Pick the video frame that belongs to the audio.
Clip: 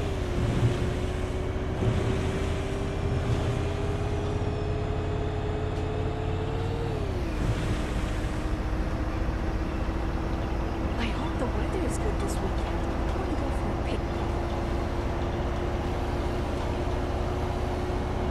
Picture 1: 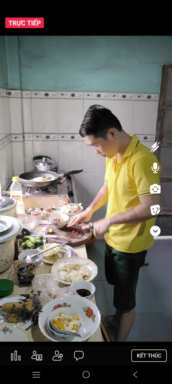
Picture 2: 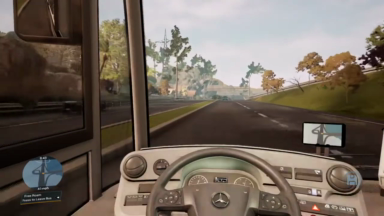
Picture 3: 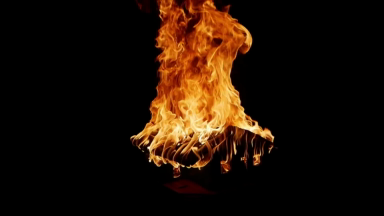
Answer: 2